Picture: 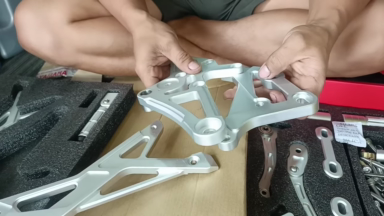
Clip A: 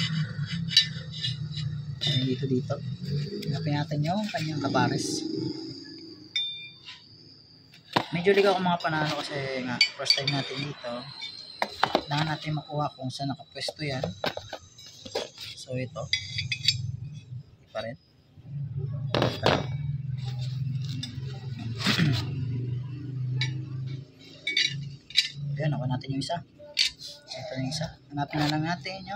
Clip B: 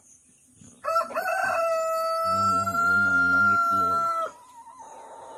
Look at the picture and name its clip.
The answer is A